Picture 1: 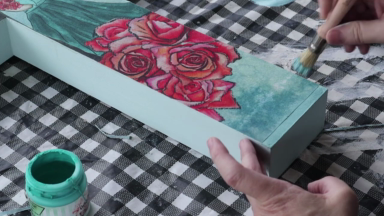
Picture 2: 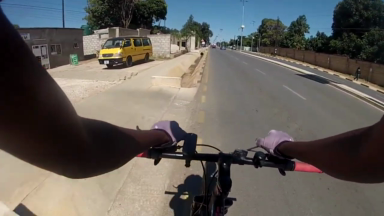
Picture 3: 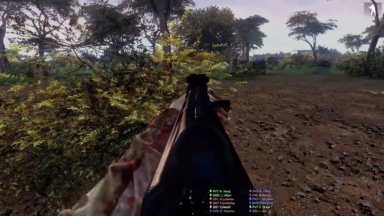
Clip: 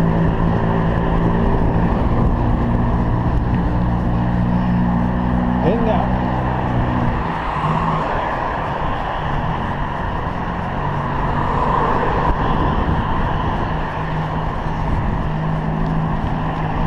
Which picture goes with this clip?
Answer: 2